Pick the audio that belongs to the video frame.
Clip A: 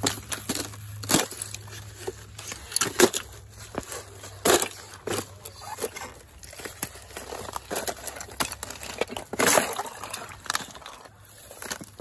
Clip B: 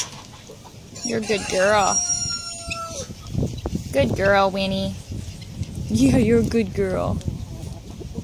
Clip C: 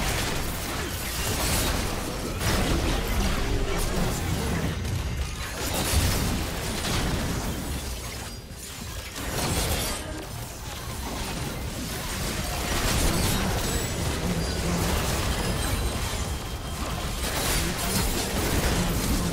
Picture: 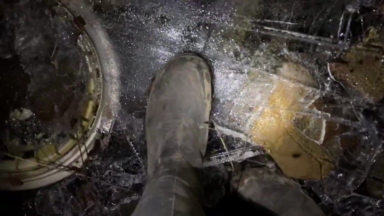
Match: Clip A